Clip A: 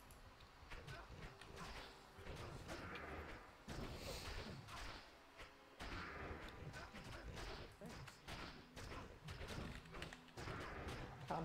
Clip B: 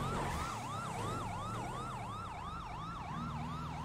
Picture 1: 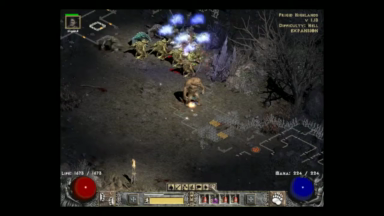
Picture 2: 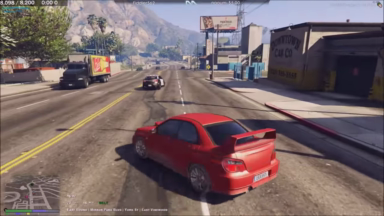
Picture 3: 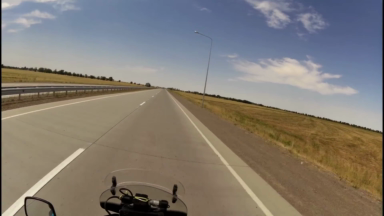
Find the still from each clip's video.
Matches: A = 1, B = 2